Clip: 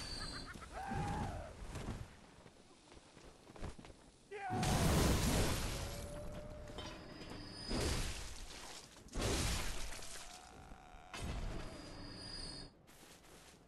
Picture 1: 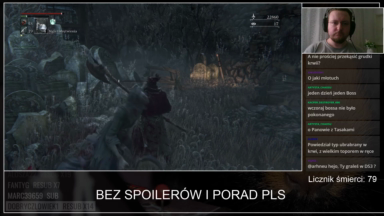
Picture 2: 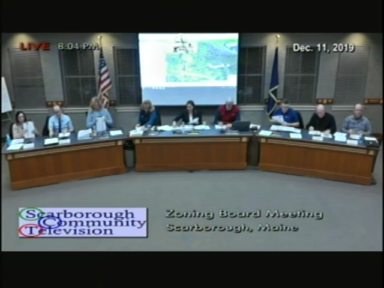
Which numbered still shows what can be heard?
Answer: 1